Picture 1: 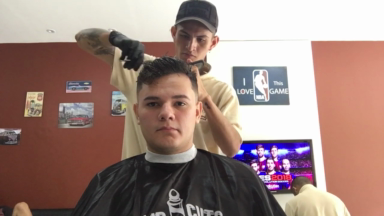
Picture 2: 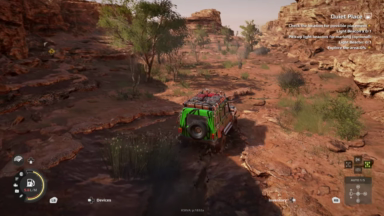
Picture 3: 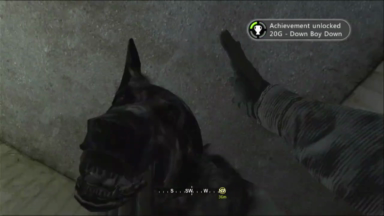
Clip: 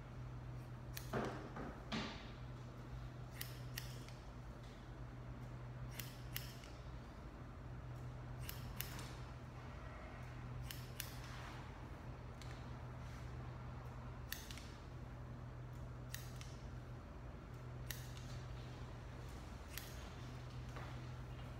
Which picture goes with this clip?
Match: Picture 1